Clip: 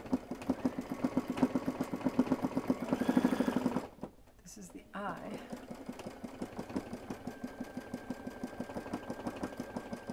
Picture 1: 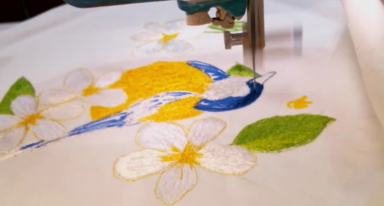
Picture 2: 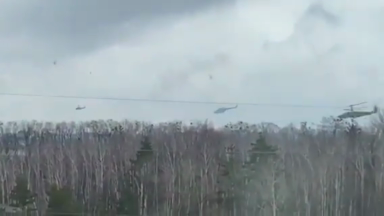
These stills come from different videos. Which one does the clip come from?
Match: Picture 1